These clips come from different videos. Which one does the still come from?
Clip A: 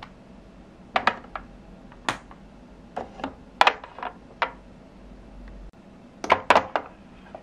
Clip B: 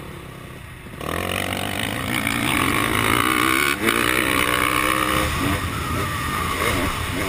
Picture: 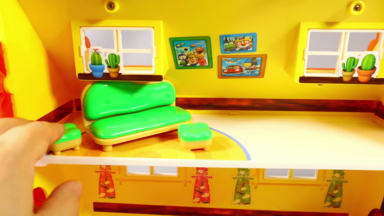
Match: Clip A